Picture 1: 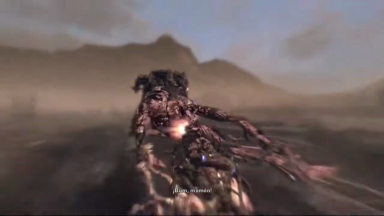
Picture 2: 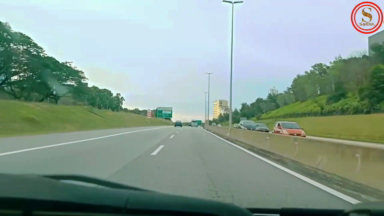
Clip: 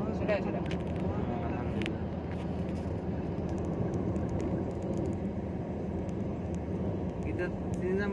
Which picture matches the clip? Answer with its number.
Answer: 2